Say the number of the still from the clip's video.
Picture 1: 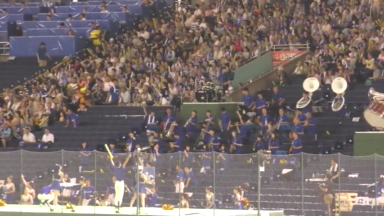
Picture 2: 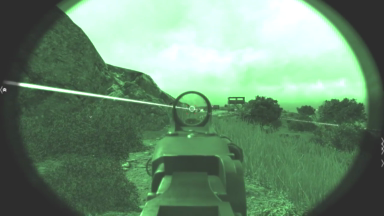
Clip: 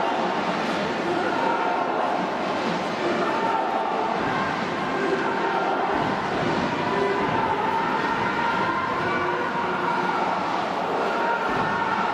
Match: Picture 1